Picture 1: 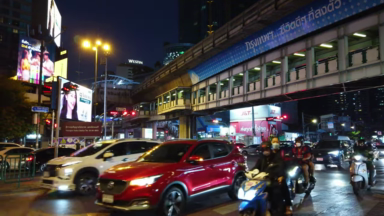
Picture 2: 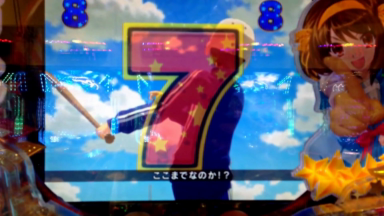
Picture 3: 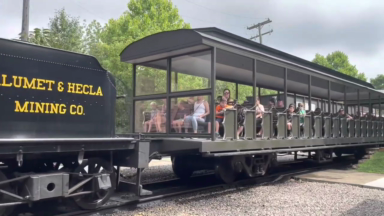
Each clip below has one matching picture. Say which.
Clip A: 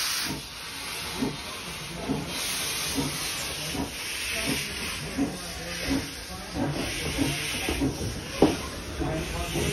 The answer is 3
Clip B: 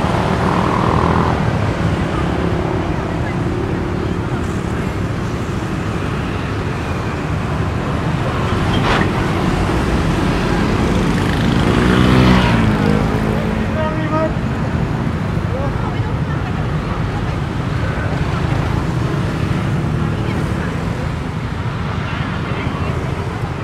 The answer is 1